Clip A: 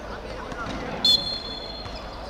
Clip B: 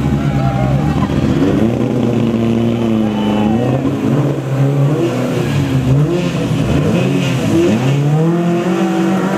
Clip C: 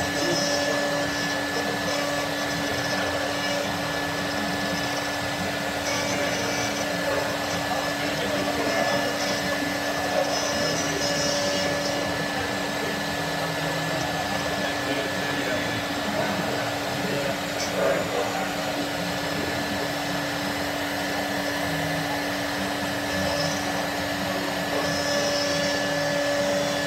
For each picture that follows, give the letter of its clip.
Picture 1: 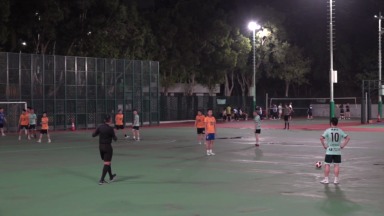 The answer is A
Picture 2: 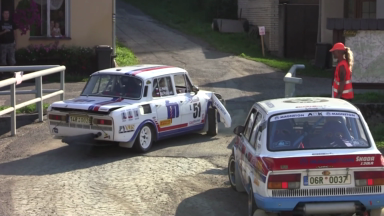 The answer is B